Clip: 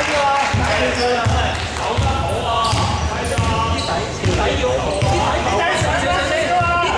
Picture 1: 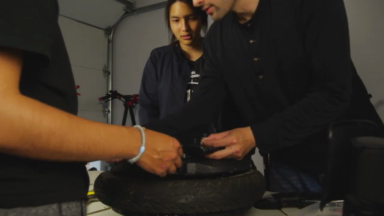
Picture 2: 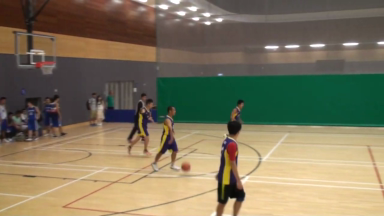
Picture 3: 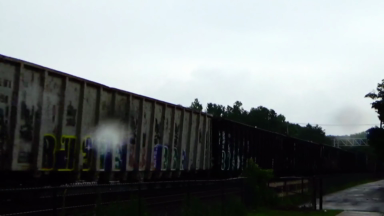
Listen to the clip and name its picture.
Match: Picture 2